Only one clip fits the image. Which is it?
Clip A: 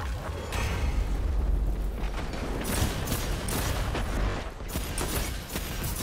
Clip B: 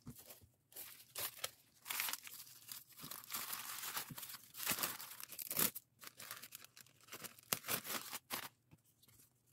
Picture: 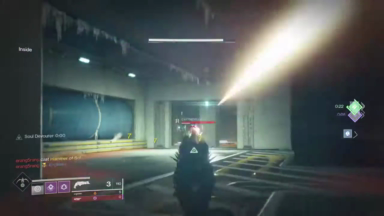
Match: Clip A